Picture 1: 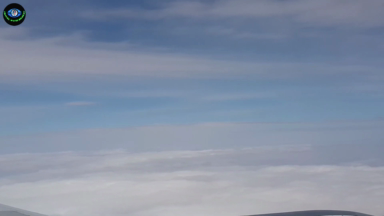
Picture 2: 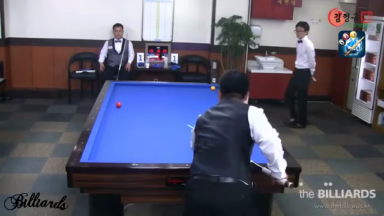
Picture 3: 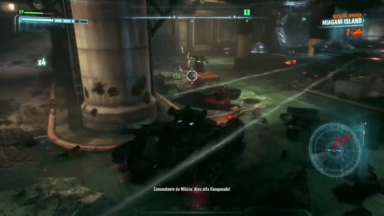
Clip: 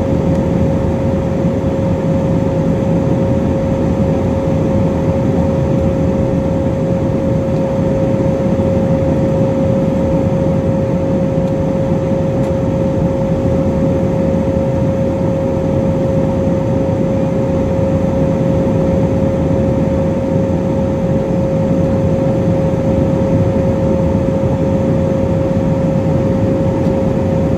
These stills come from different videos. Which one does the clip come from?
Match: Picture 1